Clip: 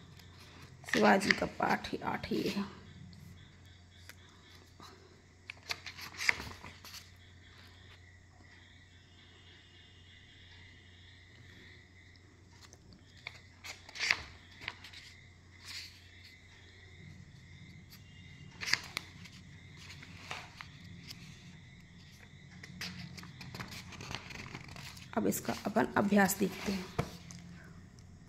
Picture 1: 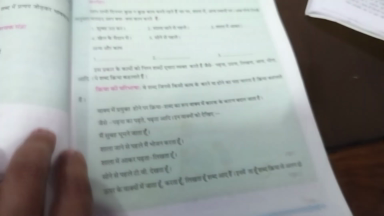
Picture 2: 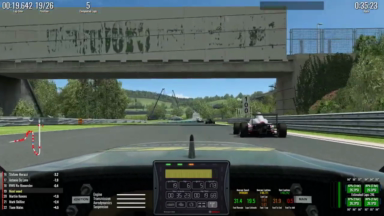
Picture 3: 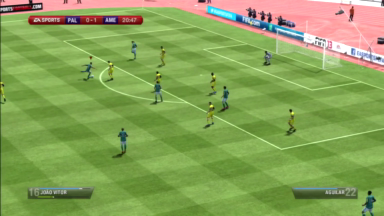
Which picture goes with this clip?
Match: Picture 1